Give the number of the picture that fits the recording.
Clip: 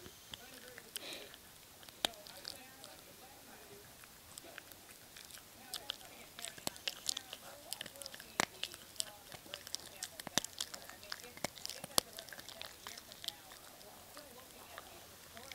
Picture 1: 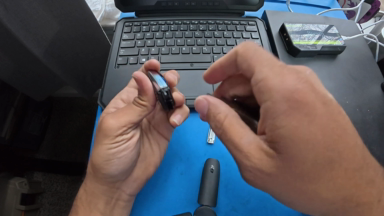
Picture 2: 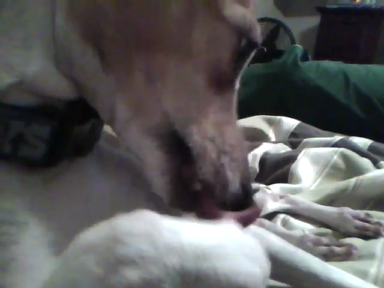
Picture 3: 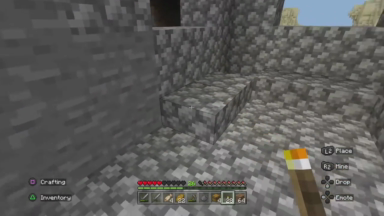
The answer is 2